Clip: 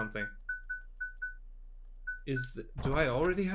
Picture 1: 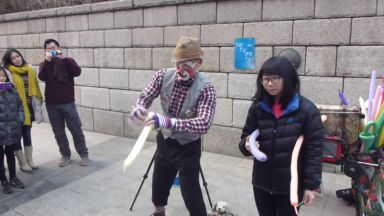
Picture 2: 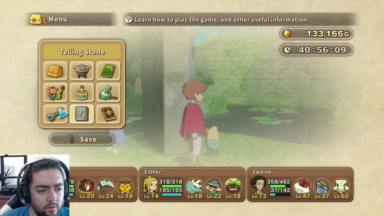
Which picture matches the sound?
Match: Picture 2